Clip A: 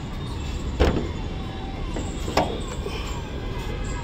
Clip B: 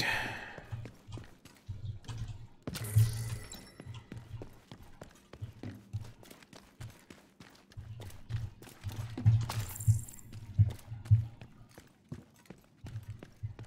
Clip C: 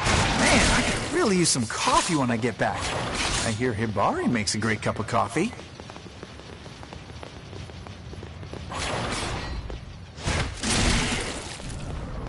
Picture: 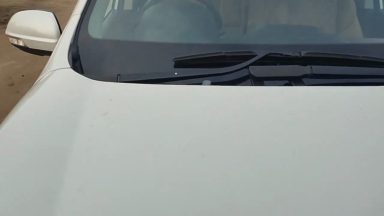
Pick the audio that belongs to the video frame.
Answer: A